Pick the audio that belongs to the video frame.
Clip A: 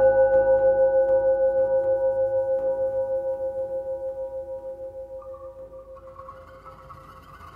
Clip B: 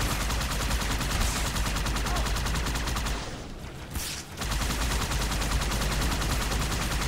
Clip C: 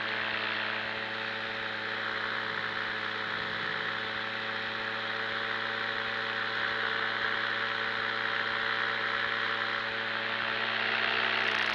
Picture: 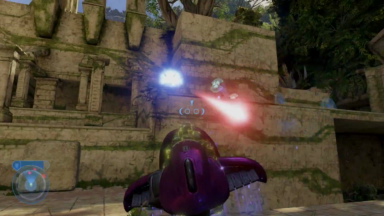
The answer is B